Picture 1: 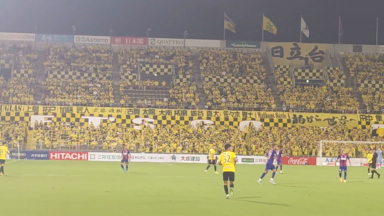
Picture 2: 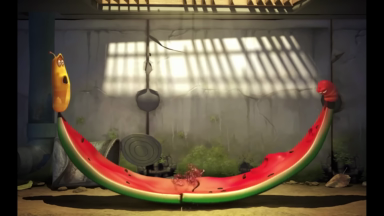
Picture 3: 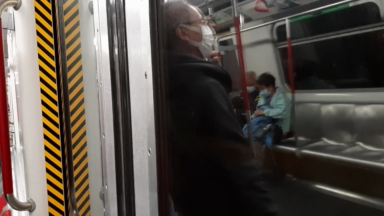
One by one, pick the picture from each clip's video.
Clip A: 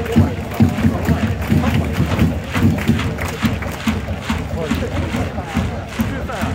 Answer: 1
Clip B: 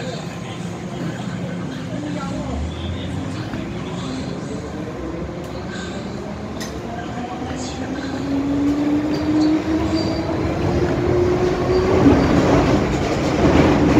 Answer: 3